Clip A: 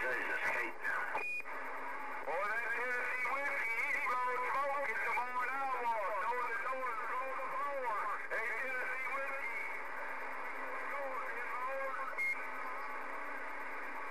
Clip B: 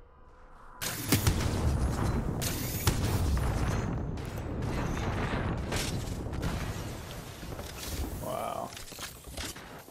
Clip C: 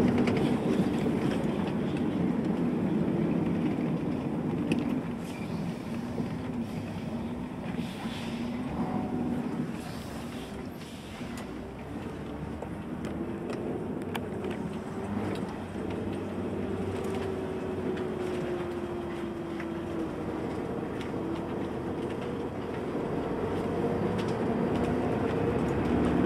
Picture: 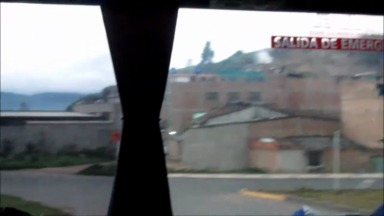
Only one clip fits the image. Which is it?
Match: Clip C